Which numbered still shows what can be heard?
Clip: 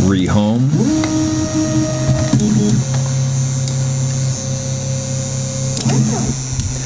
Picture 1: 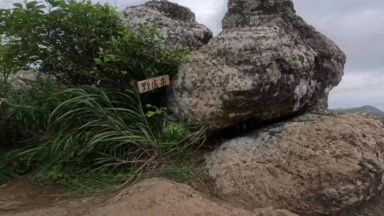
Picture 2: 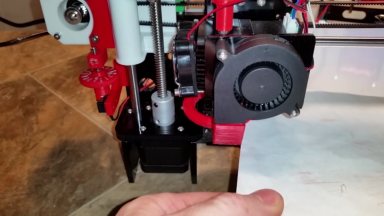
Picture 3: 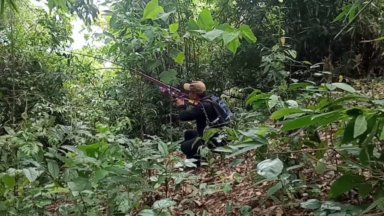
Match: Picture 2